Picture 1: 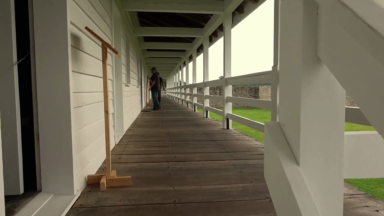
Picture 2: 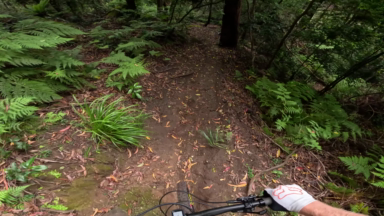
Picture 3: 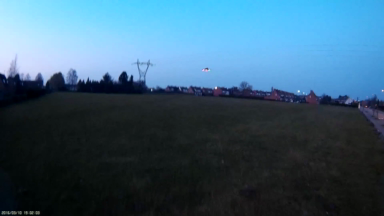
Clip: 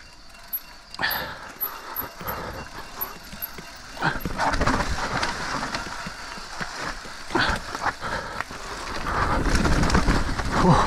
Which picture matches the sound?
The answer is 2